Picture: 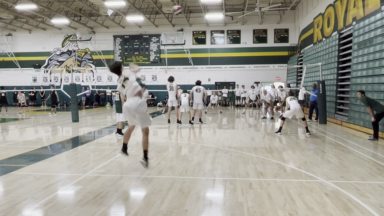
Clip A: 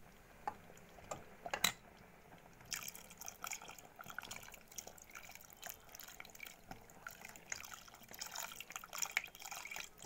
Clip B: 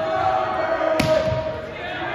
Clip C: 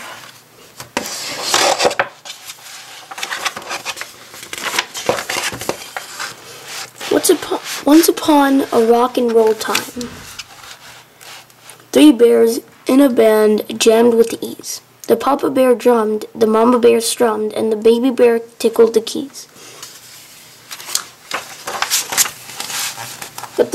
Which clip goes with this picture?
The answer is B